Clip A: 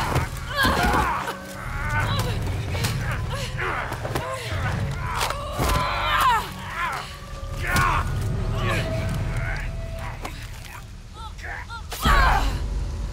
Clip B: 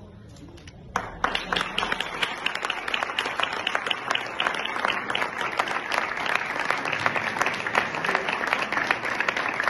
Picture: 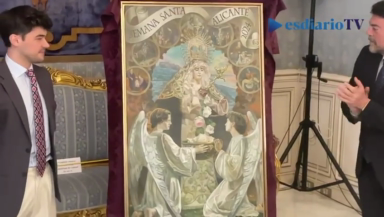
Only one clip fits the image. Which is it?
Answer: B